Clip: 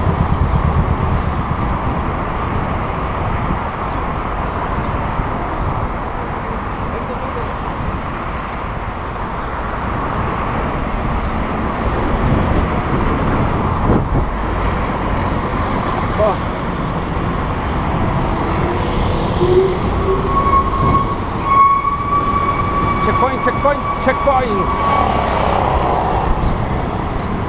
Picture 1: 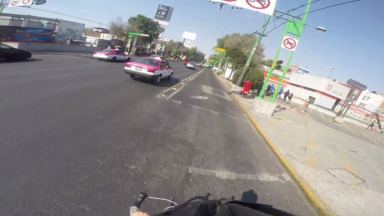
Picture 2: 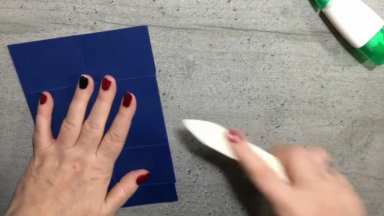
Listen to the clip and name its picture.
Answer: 1